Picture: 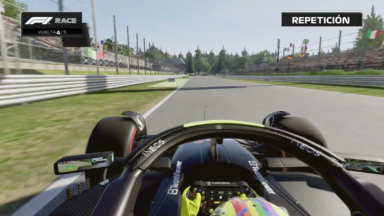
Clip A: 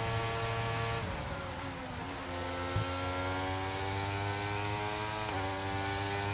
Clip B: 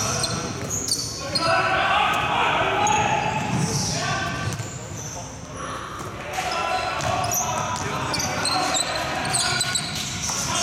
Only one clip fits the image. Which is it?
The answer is A